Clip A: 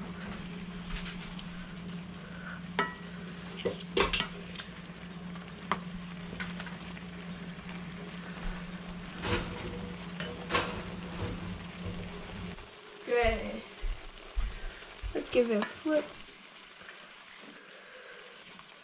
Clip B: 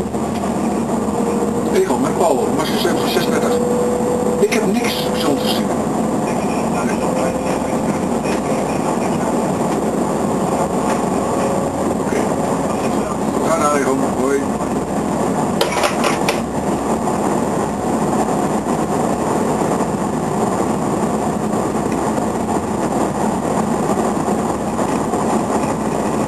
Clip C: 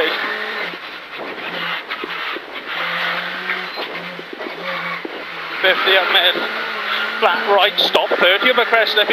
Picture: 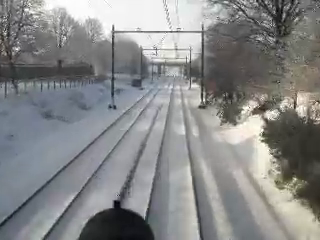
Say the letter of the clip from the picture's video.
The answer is B